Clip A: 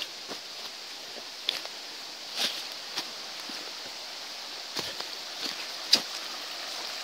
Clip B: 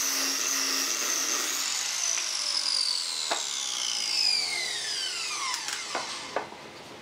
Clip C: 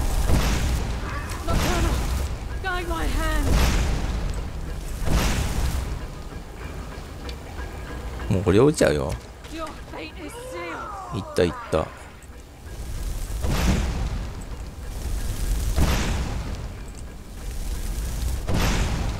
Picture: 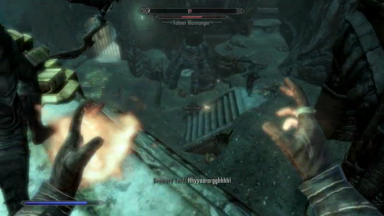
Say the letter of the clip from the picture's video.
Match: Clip C